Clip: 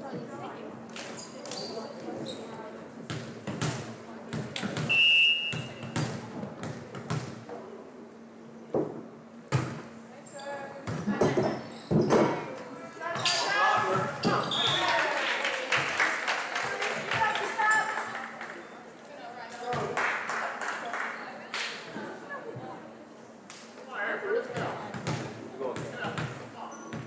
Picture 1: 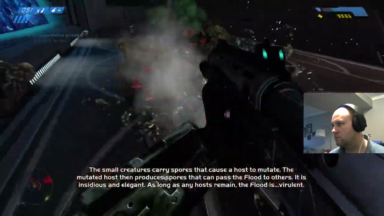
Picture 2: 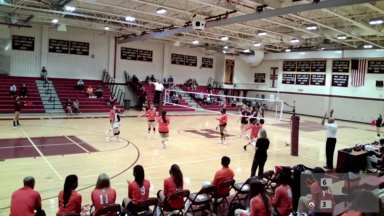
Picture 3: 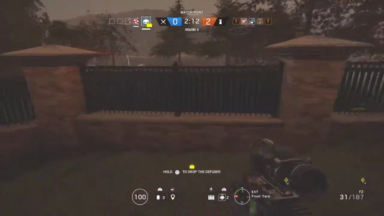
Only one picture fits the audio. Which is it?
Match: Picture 2